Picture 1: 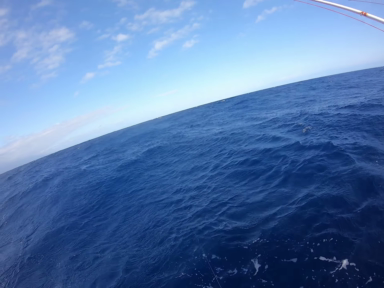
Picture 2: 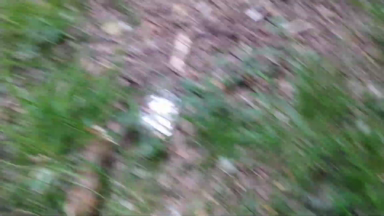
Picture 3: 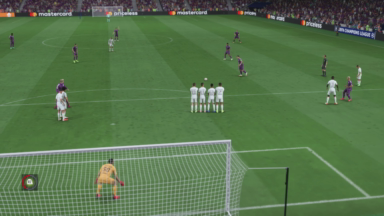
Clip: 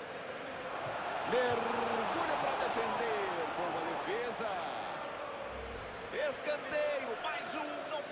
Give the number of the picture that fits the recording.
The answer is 3